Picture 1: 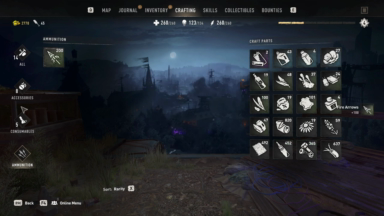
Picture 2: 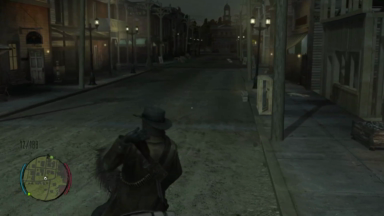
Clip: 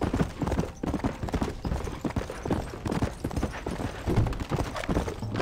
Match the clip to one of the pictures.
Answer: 2